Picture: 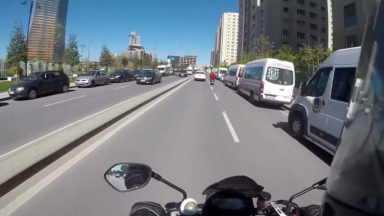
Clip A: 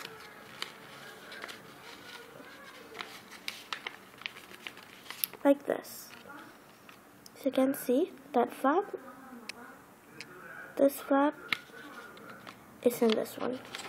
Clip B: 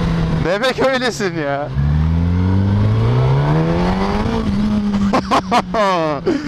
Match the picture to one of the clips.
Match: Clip B